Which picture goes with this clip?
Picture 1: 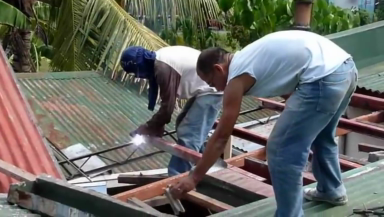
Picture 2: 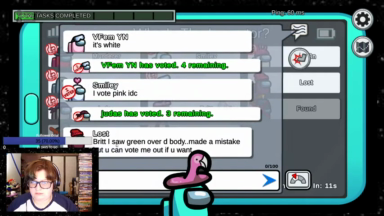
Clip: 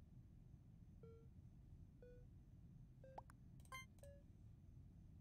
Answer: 2